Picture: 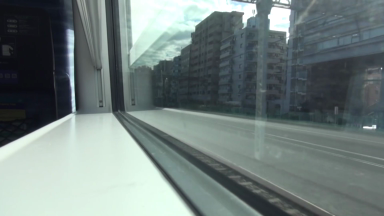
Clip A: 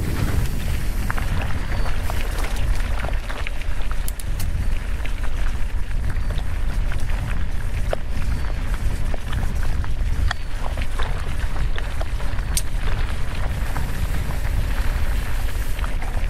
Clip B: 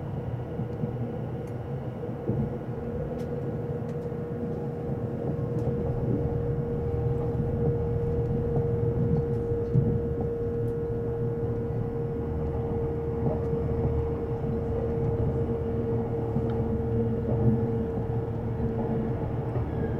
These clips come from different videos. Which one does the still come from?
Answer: B